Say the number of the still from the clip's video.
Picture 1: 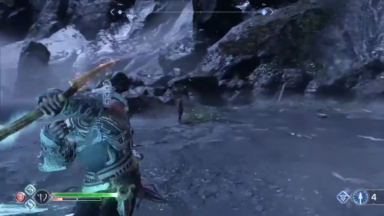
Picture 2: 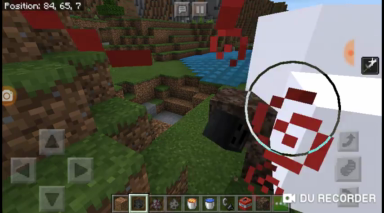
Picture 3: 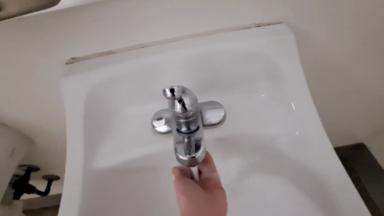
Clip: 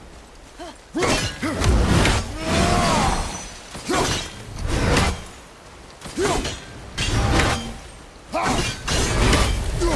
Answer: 1